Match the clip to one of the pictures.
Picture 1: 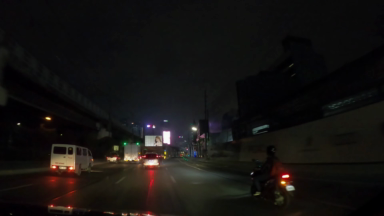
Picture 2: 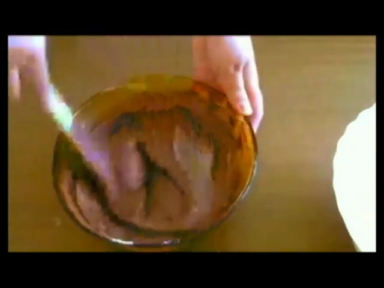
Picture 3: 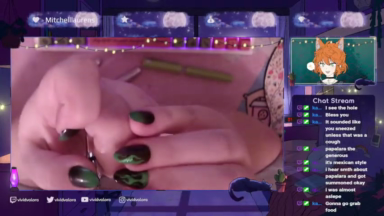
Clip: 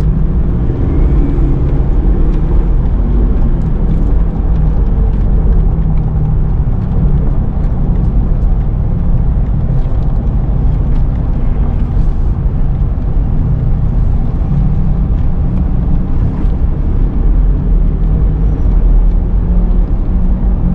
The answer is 1